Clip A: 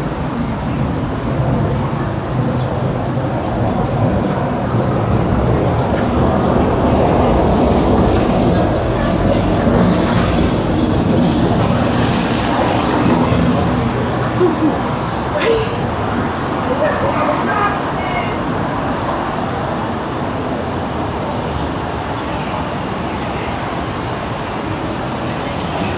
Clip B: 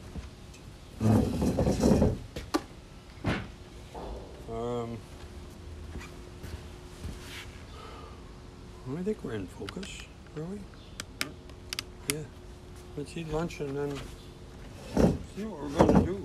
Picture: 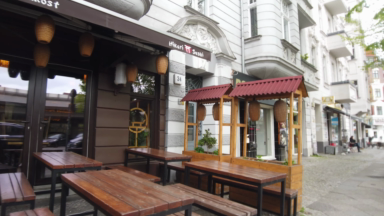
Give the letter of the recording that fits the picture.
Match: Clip A